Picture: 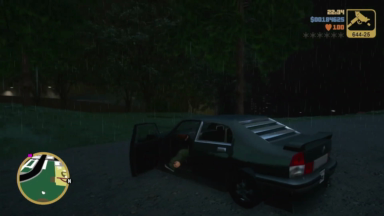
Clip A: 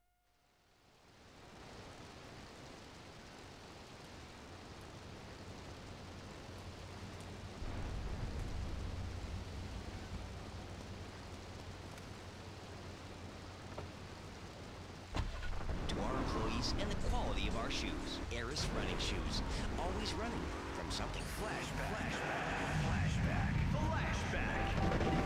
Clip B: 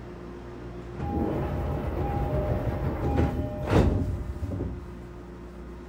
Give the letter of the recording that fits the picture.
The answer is A